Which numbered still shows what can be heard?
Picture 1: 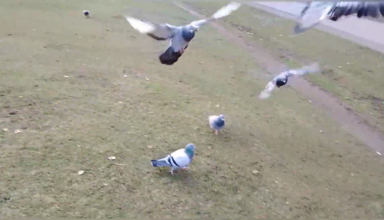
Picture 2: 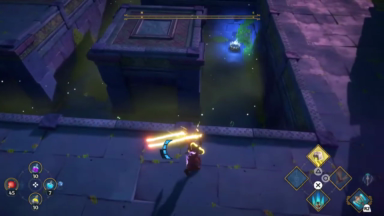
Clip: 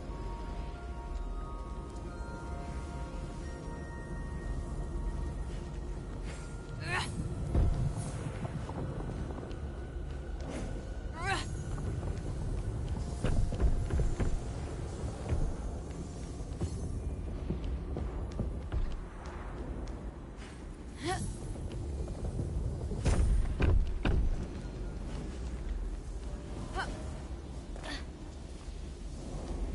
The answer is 2